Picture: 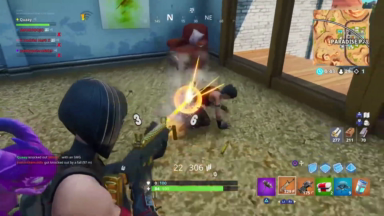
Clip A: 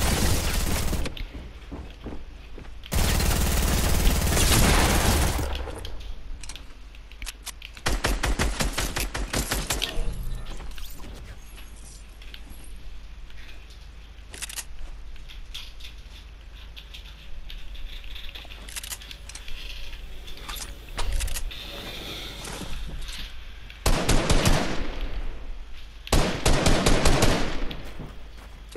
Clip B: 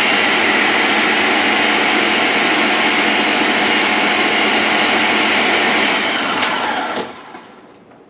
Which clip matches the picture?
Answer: A